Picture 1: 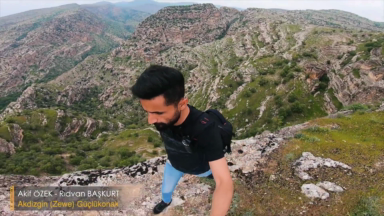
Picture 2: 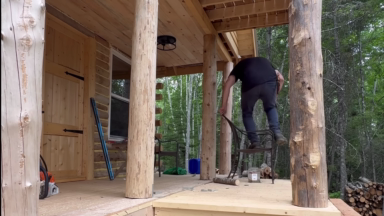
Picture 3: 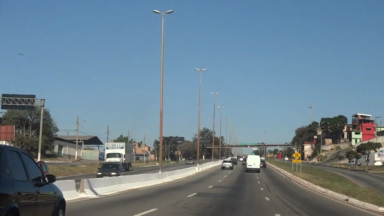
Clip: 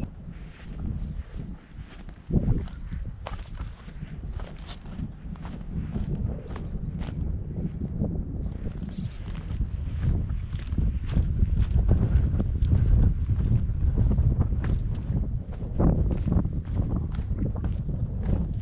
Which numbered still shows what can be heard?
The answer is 1